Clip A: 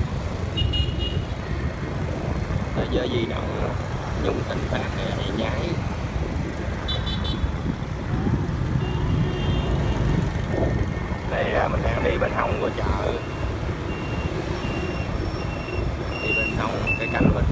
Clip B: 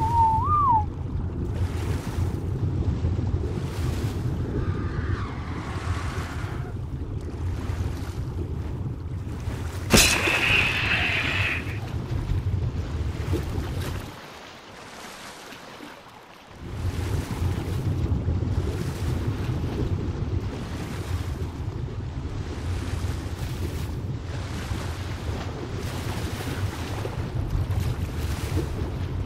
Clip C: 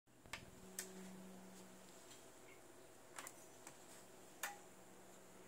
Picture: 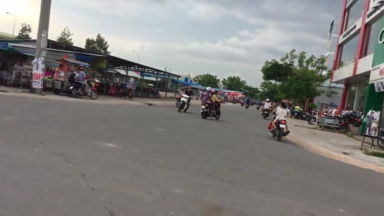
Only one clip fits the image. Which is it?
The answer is A